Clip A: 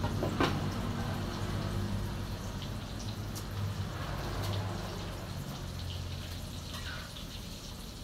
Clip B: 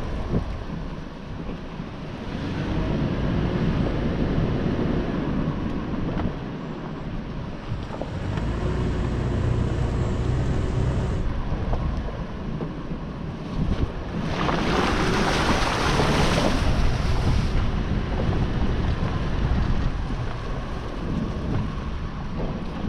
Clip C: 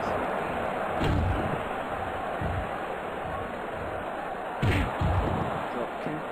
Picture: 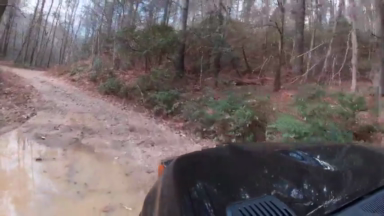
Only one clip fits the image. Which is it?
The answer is B